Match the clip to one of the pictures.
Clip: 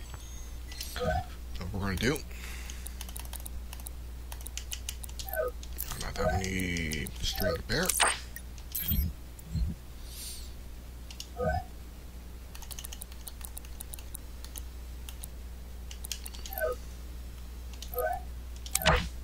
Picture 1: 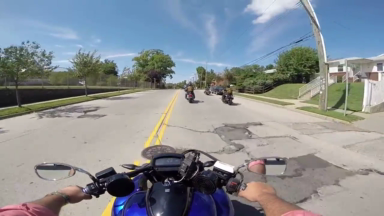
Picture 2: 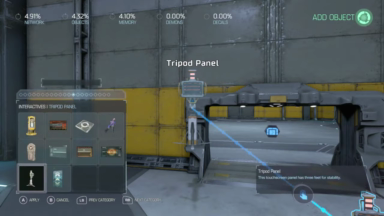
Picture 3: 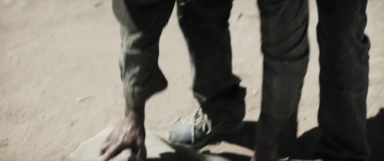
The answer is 2